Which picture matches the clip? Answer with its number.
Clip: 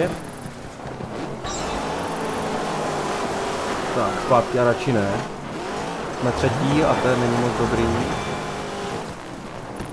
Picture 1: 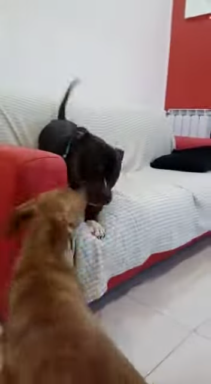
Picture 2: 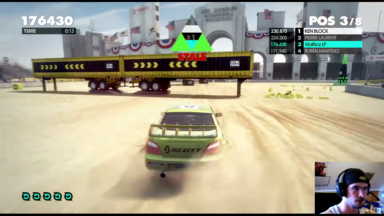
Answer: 2